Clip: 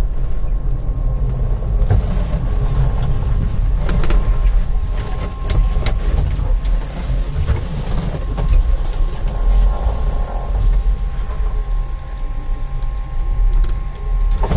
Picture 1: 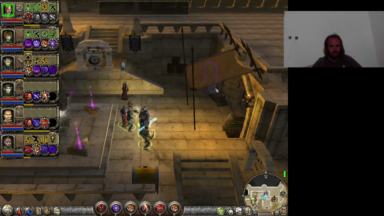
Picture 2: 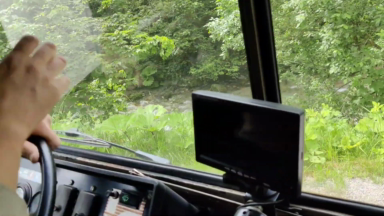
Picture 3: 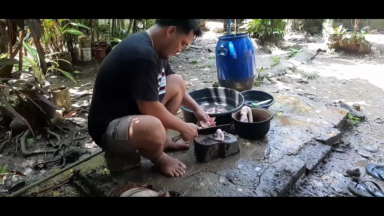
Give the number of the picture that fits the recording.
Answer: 2